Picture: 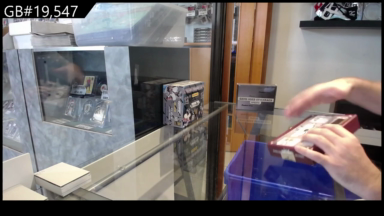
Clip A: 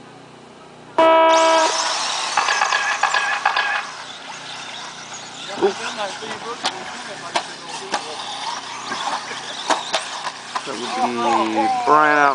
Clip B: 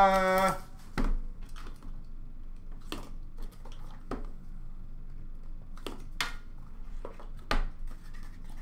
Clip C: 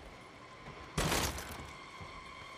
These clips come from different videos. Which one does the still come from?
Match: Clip B